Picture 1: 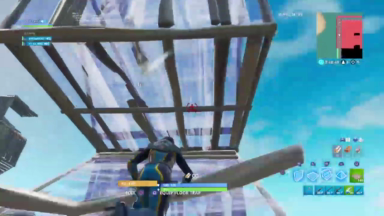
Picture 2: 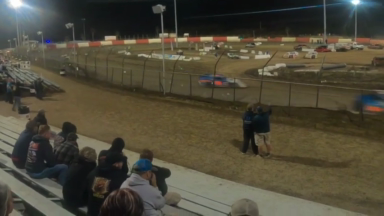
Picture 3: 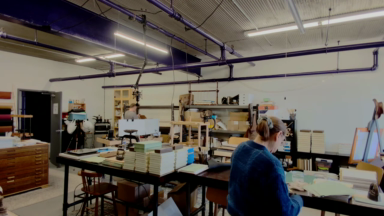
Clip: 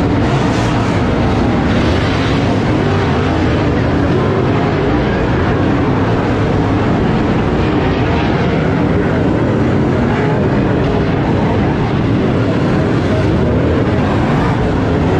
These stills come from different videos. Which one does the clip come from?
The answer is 2